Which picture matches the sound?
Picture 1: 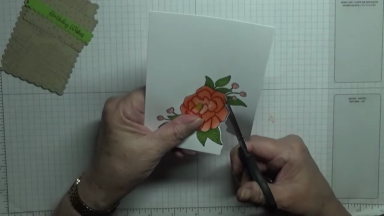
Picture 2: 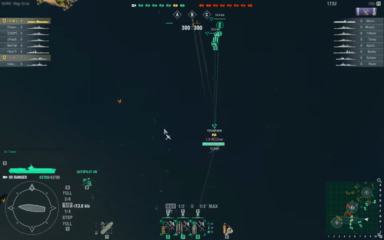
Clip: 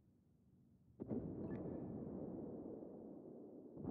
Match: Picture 2